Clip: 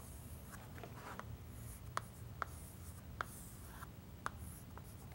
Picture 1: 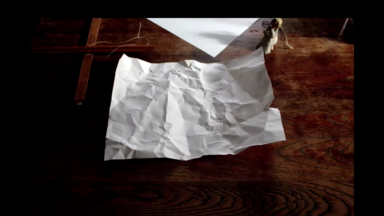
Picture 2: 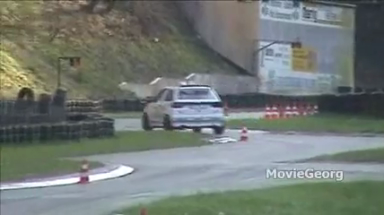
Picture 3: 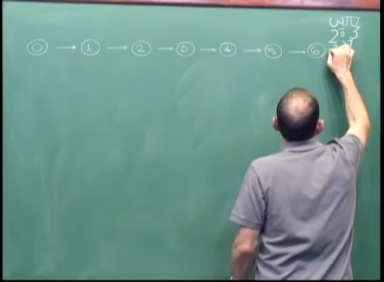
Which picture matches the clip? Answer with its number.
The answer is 3